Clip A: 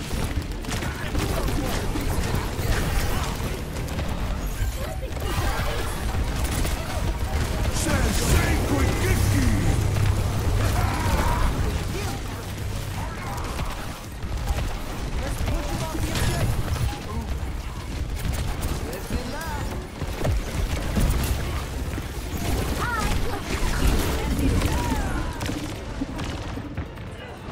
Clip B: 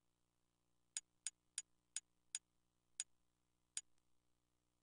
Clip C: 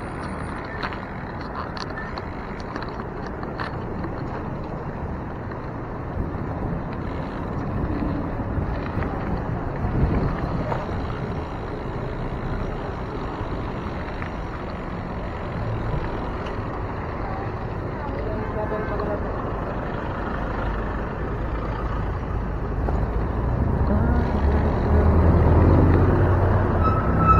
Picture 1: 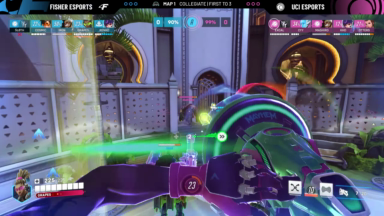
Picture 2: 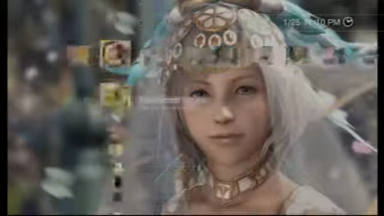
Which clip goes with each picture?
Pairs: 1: A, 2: B